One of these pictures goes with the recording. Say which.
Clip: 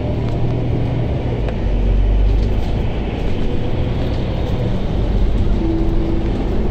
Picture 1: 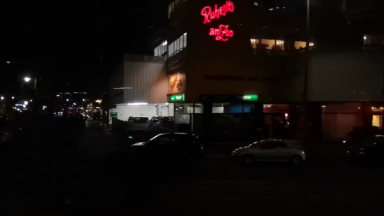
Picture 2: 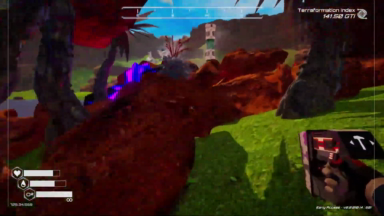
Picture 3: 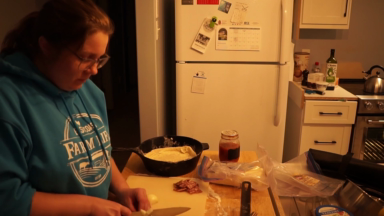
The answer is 1